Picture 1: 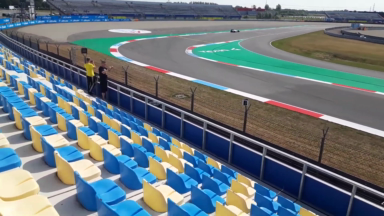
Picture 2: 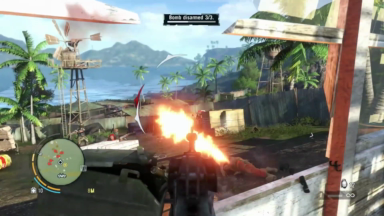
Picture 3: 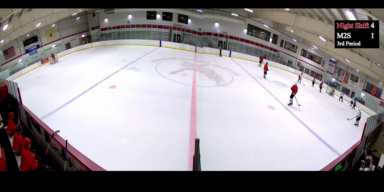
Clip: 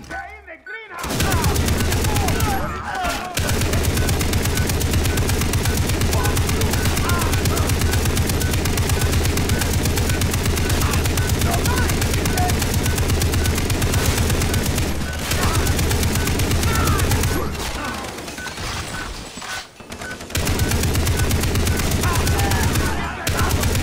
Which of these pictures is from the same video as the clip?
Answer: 2